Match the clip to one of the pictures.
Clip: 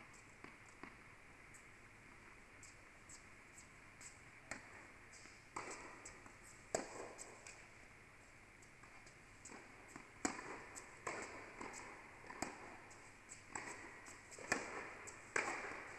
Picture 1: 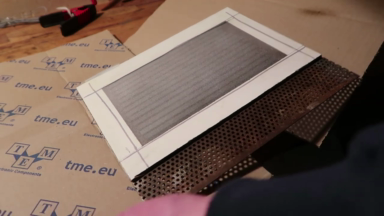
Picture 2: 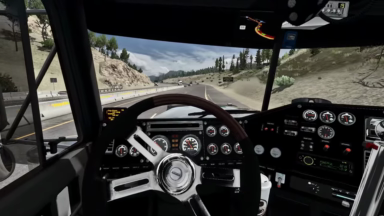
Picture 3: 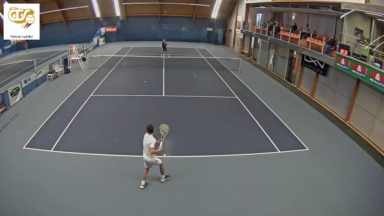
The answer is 3